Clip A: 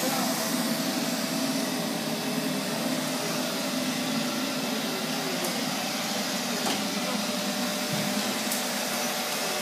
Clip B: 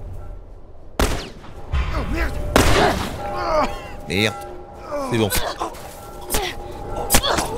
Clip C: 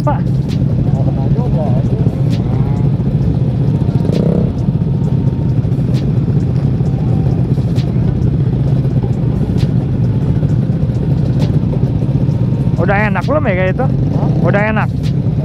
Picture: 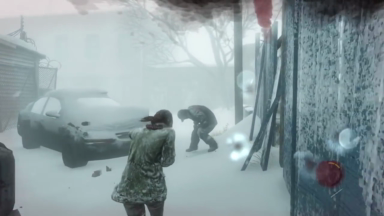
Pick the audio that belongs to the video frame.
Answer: B